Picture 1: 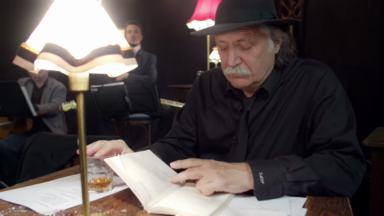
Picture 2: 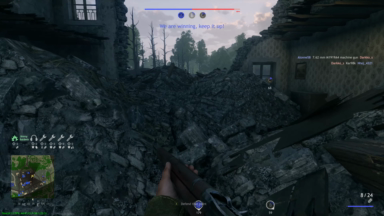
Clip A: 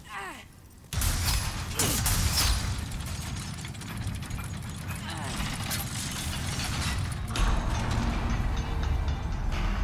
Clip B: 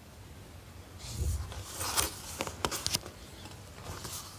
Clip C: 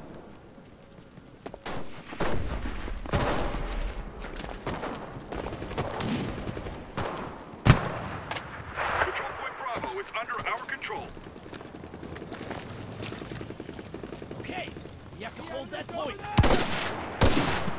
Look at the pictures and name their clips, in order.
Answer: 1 B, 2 C